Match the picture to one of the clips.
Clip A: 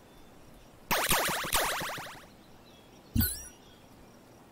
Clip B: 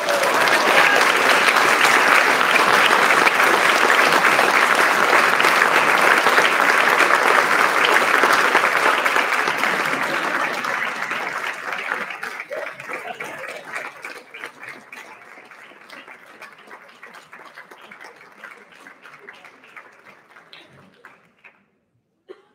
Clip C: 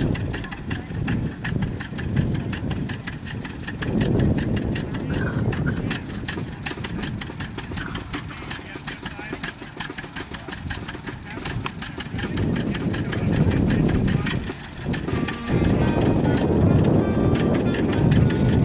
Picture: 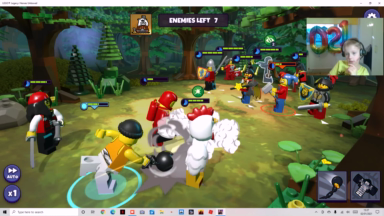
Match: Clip A